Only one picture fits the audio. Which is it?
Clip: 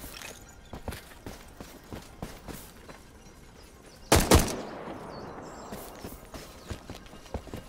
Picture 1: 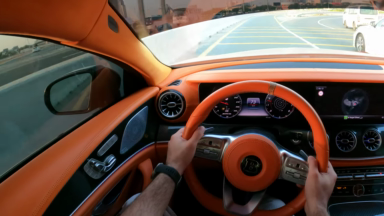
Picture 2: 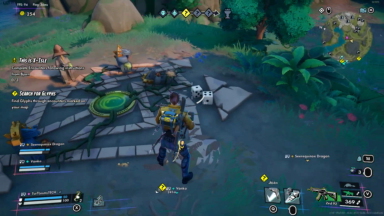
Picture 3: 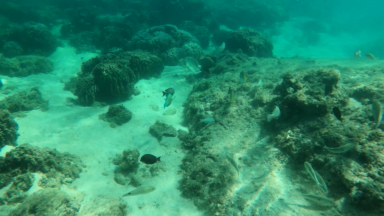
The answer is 2